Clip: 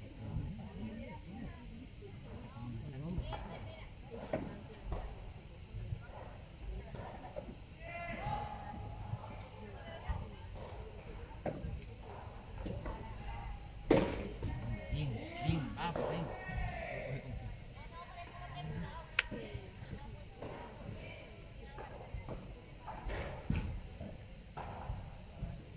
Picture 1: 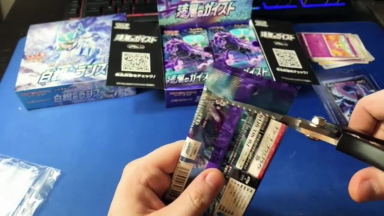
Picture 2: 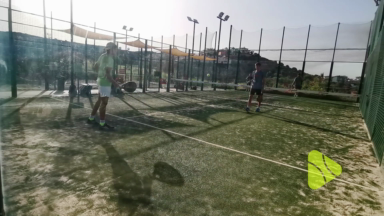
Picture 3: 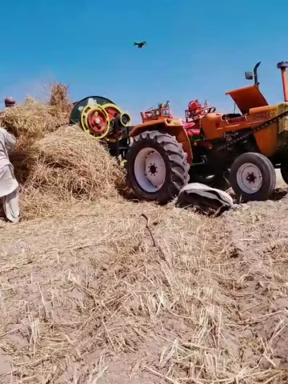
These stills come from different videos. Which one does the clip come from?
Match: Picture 2